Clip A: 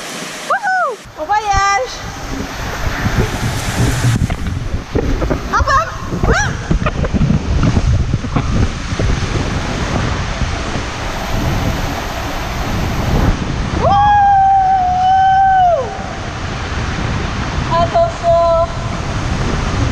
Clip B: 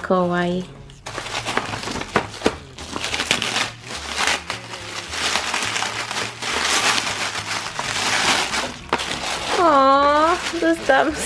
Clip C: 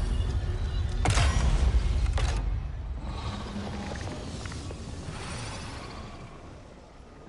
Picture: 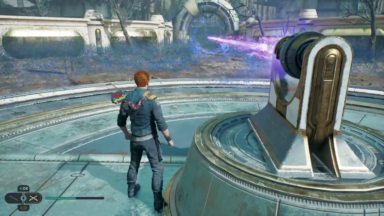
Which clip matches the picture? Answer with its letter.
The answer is C